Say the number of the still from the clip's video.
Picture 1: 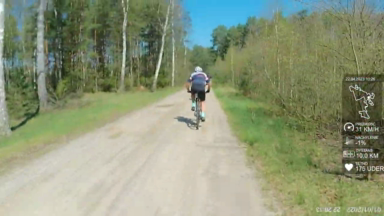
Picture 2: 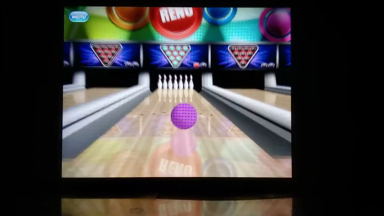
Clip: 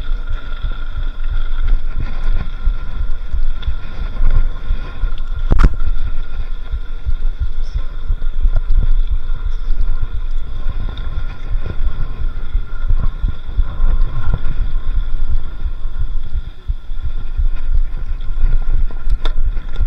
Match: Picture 1